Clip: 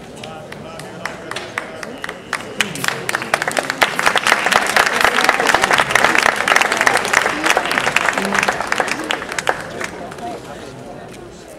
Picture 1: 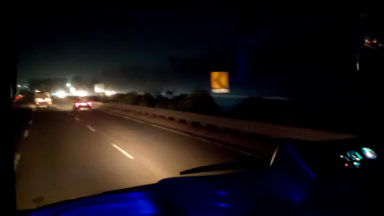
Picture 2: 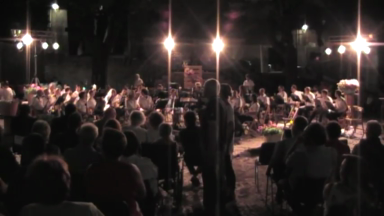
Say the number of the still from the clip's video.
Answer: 2